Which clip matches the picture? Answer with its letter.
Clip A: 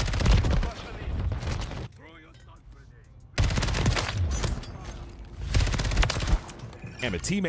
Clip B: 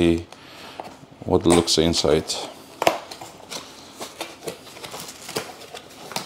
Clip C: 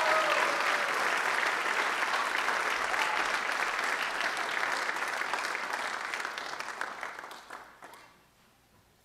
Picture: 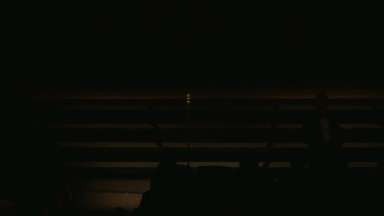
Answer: C